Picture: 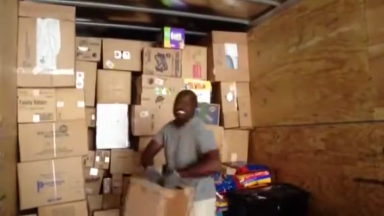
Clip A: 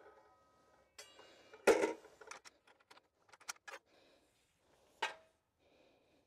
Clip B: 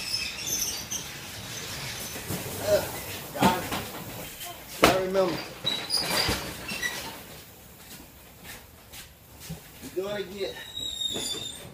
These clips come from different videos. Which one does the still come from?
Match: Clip B